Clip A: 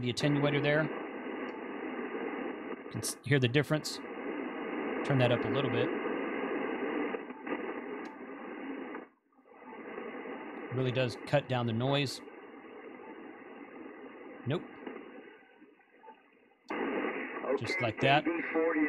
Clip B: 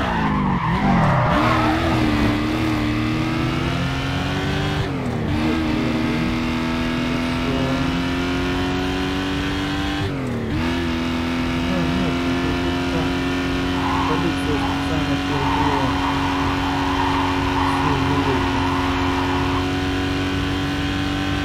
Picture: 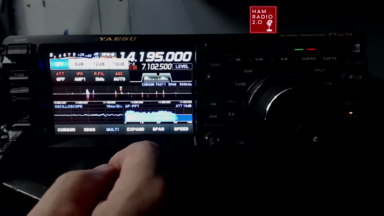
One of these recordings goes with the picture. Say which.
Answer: A